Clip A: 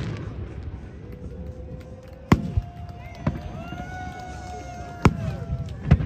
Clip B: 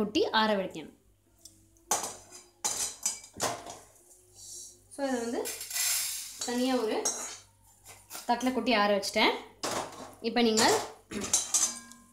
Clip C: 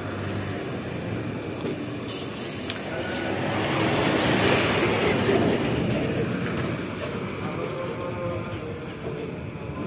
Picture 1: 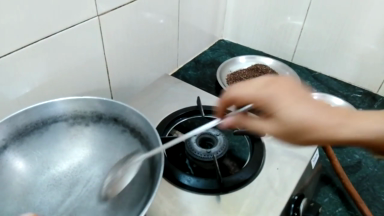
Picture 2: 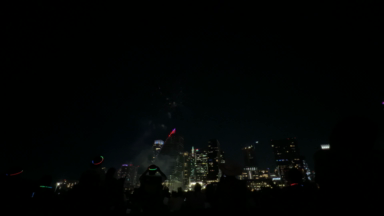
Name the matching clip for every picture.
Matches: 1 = B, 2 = A